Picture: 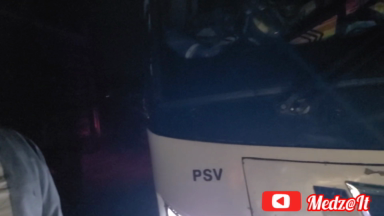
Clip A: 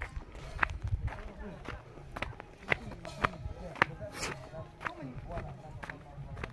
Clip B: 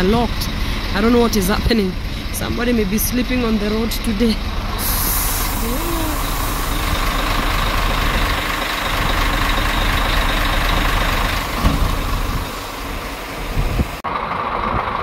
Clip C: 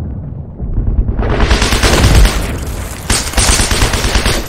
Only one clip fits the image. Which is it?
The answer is B